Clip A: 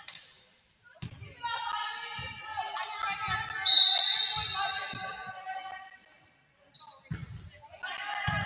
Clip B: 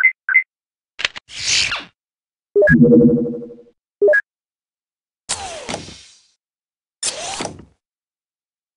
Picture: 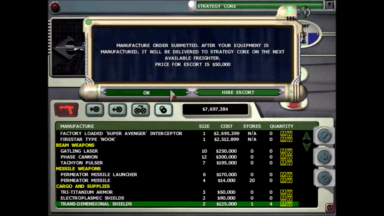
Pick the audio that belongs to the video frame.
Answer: B